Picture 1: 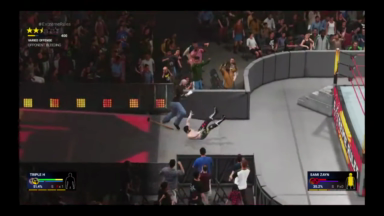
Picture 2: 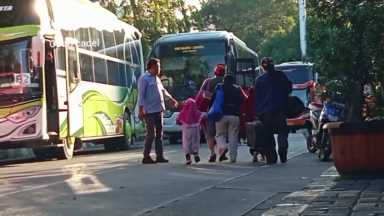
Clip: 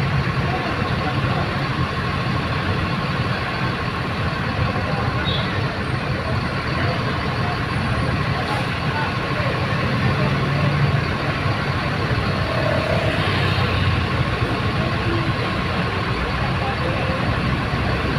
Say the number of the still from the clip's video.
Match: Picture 2